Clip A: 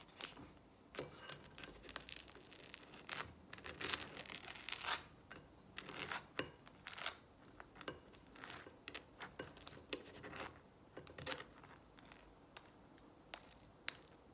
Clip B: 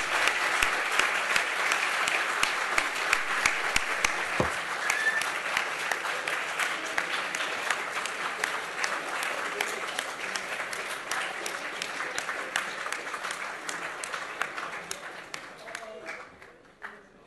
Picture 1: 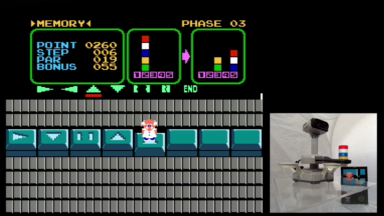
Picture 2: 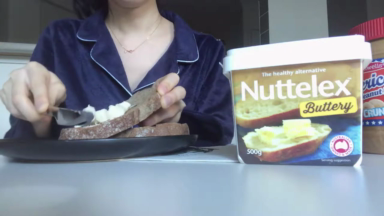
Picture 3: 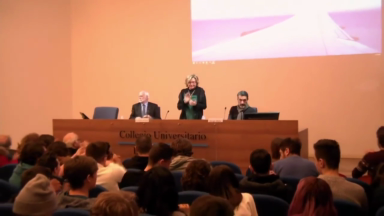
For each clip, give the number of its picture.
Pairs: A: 2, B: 3